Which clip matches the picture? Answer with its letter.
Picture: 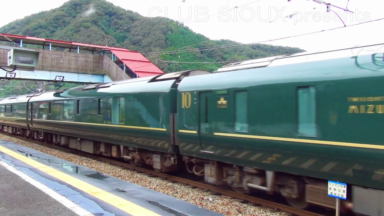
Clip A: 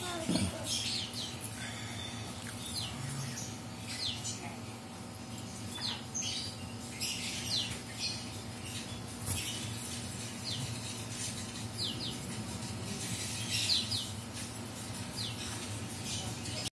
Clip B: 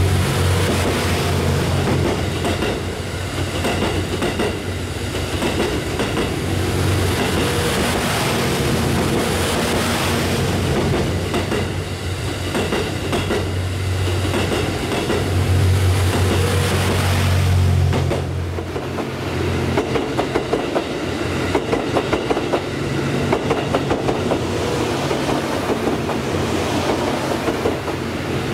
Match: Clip B